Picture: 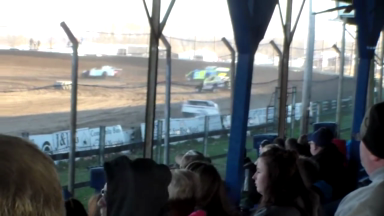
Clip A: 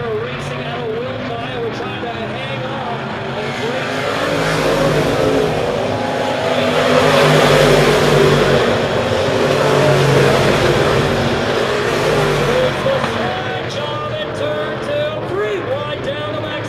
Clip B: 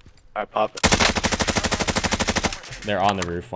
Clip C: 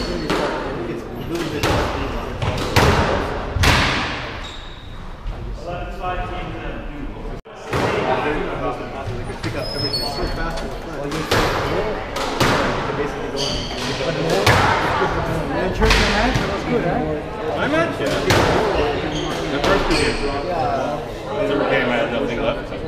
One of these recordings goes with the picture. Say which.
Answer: A